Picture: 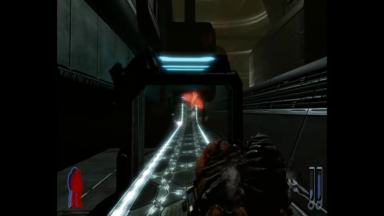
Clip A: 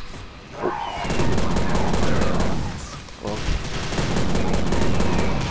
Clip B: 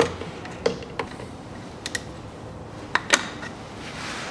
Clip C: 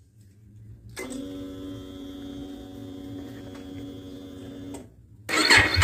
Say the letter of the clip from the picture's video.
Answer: A